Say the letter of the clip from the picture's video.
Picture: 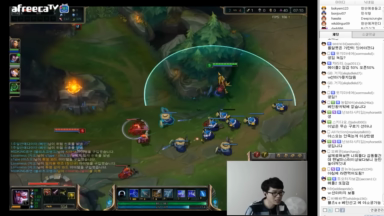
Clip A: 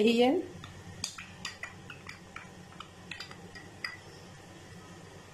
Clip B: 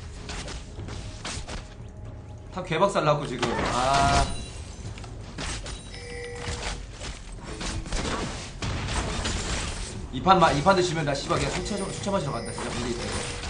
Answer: B